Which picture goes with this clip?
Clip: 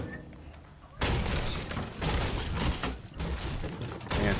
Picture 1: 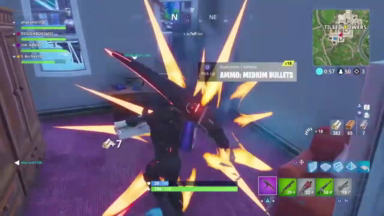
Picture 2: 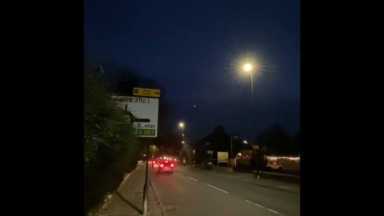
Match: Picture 1